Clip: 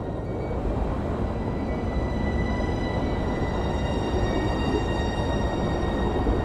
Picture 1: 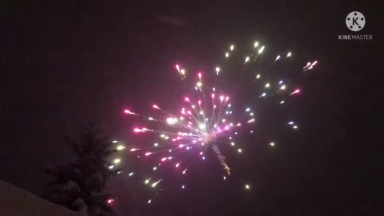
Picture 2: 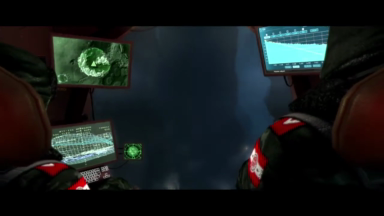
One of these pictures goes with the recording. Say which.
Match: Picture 2